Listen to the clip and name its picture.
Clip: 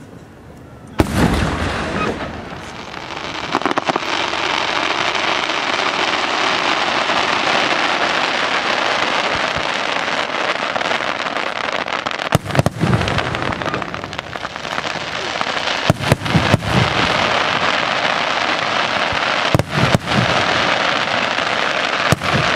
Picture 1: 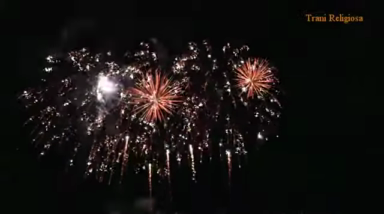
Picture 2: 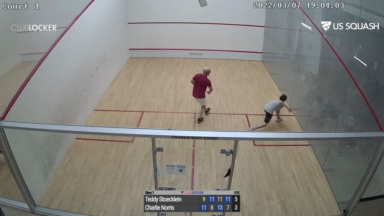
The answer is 1